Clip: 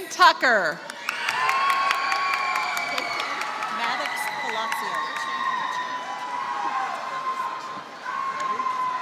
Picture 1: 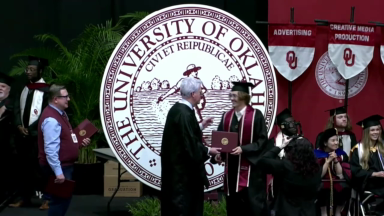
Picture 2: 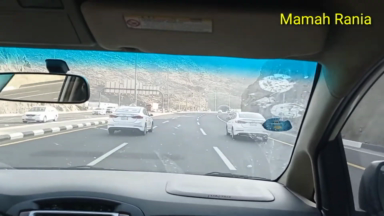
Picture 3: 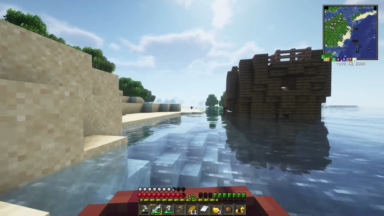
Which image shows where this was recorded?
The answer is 1